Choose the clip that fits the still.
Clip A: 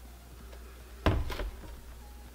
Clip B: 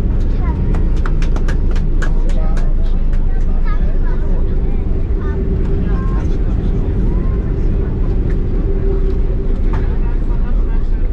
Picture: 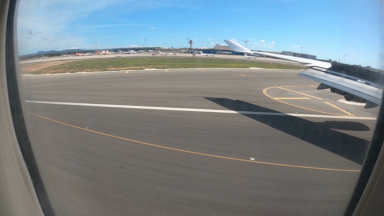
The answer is B